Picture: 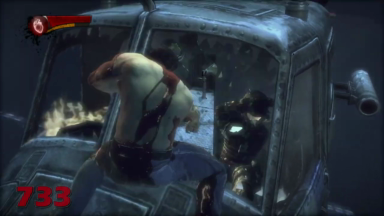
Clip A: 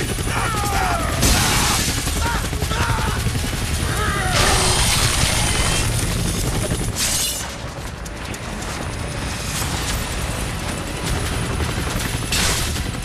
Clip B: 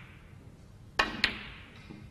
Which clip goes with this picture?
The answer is A